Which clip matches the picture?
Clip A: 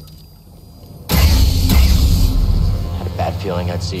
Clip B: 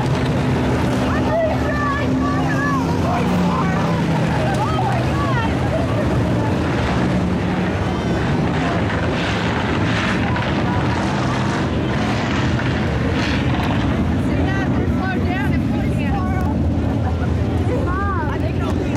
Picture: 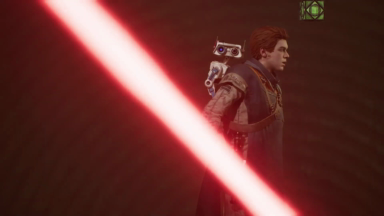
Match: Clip A